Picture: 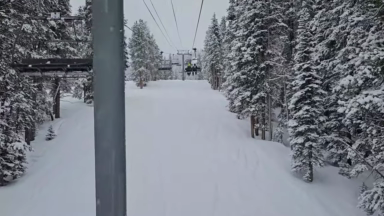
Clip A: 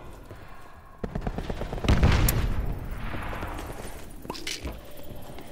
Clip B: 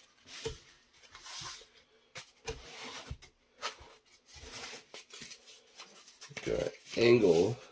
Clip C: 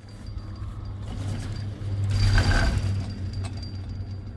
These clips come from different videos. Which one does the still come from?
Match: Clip C